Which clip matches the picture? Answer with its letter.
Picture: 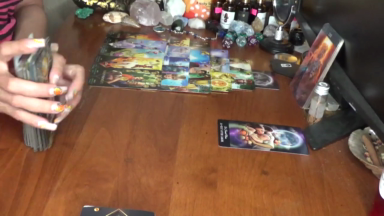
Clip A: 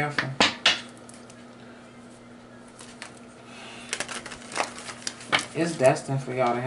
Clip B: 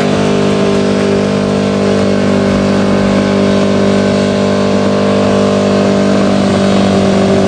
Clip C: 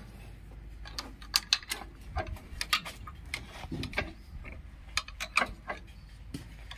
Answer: A